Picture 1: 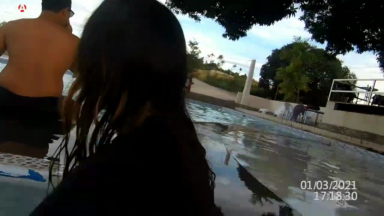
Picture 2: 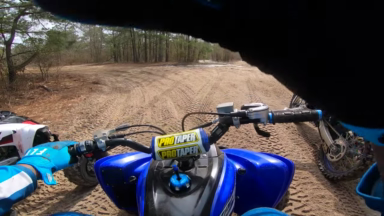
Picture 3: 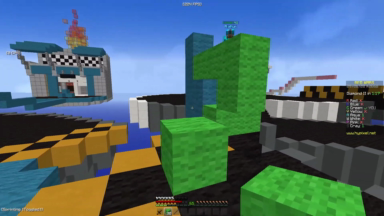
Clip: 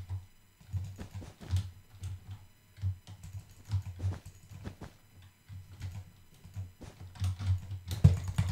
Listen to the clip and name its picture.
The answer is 3